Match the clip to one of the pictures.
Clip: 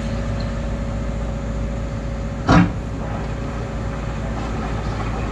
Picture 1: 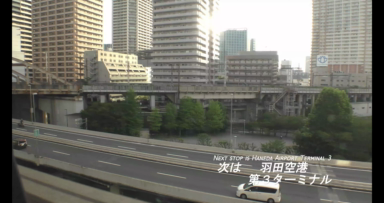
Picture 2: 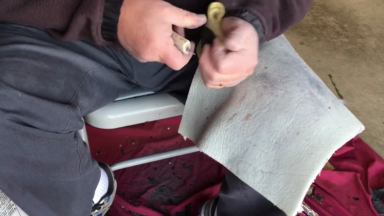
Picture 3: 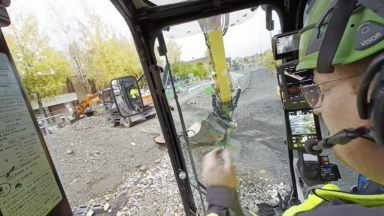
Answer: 3